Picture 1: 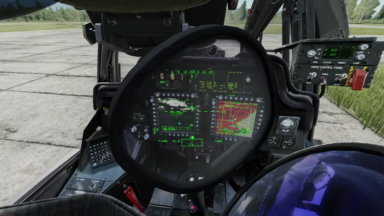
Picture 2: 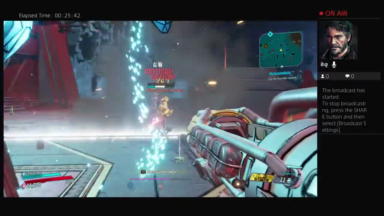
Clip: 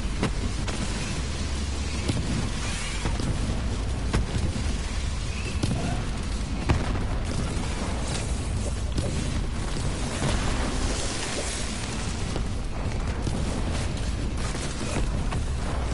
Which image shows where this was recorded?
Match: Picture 2